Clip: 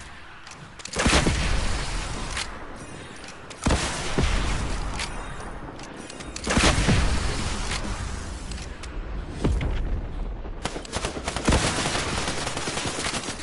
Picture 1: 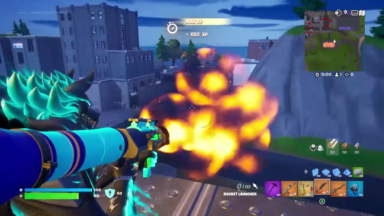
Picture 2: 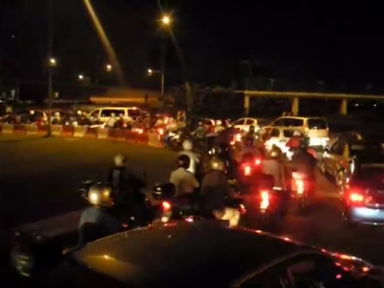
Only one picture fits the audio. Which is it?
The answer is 1